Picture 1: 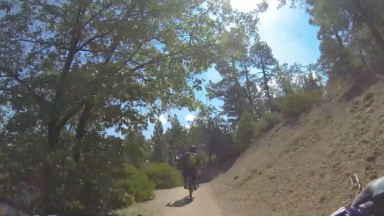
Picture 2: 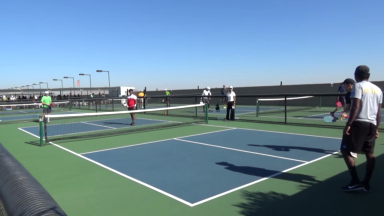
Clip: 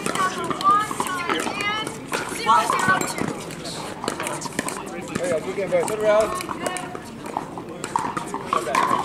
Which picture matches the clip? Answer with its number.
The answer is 2